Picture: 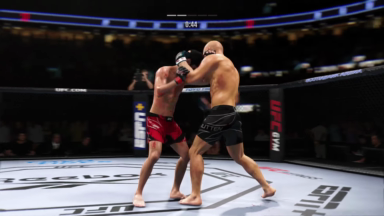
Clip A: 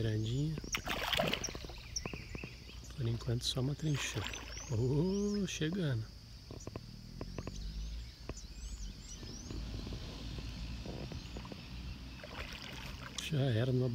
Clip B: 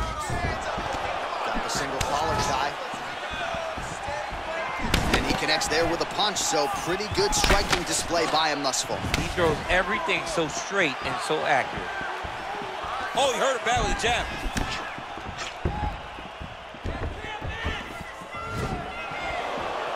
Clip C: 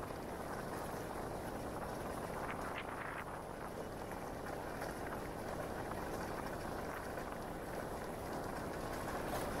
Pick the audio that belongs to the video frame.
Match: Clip B